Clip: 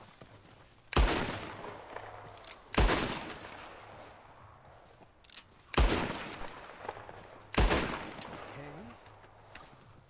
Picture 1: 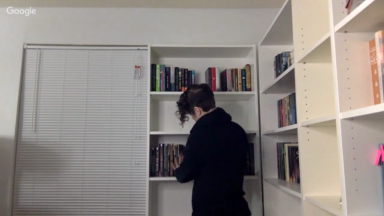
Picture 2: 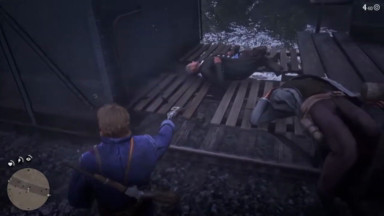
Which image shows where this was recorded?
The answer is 2